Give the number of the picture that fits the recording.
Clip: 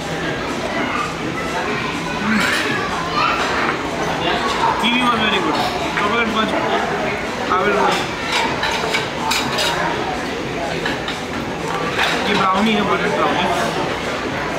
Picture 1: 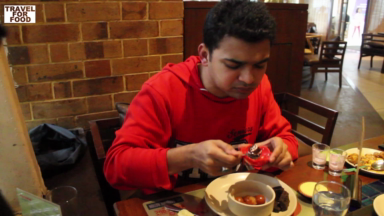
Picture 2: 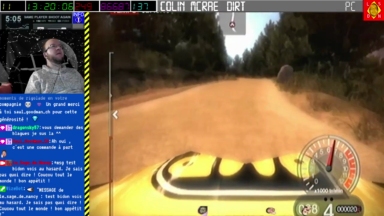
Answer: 1